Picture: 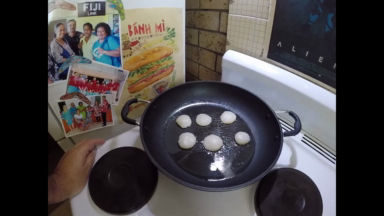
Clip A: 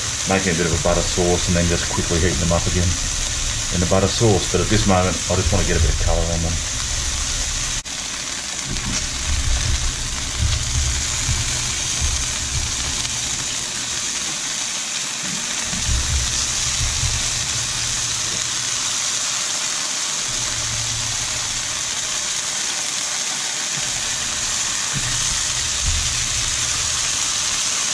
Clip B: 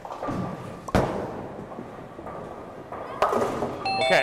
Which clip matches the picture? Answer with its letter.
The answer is A